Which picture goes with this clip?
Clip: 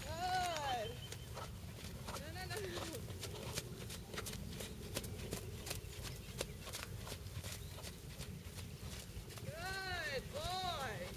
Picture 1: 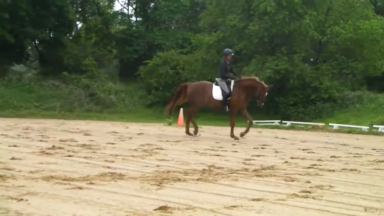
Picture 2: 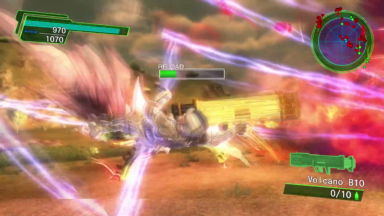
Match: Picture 1